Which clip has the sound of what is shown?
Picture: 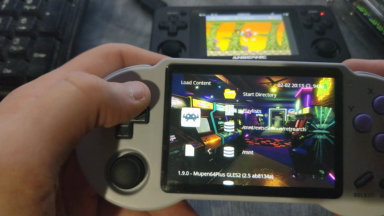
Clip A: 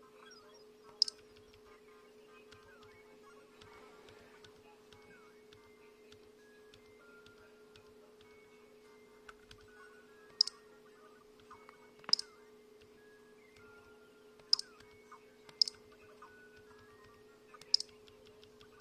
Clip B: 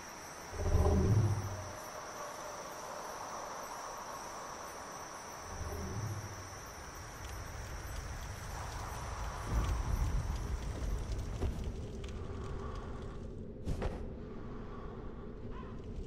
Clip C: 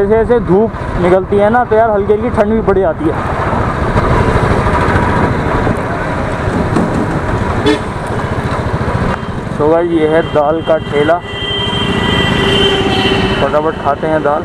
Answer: A